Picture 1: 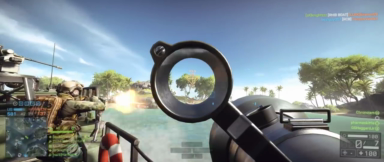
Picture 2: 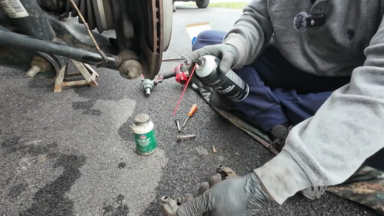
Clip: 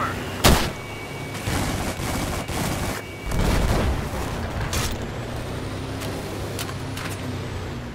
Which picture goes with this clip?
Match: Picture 1